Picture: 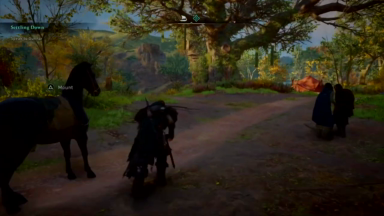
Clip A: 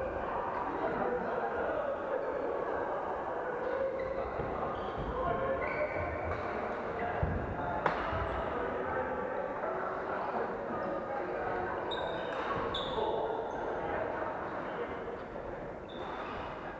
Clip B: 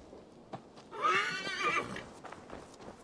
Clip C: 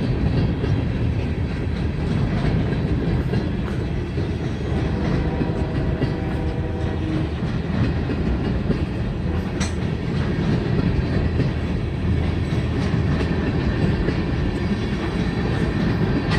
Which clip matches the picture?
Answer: B